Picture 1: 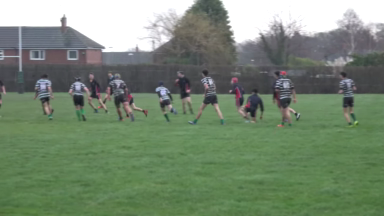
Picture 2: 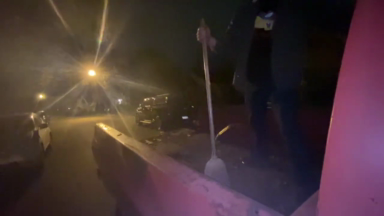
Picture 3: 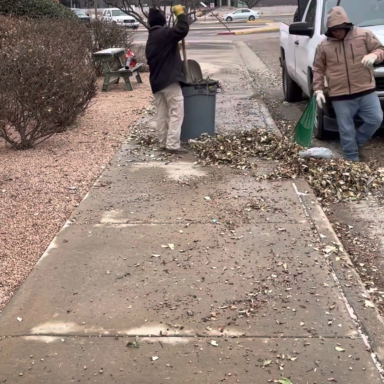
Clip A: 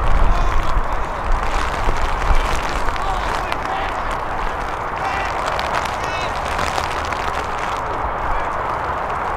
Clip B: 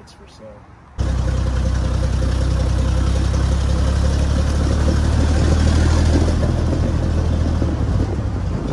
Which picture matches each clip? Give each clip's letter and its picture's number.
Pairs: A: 1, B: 2